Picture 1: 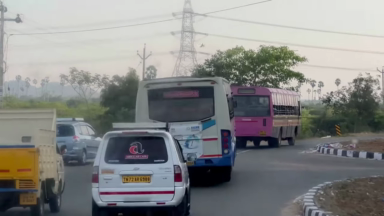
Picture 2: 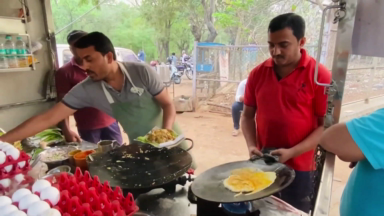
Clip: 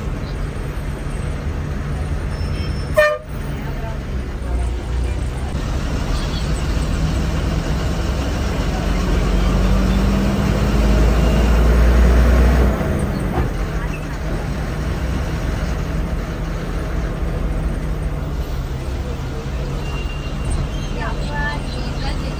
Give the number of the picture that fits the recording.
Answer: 1